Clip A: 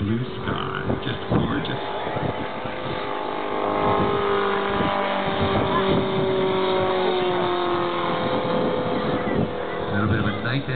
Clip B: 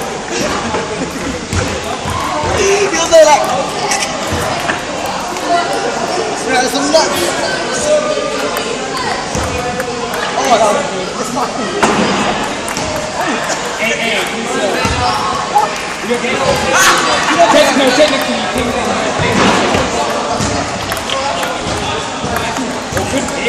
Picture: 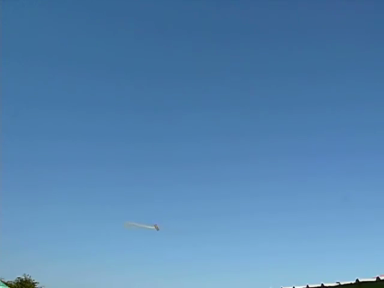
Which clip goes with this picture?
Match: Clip A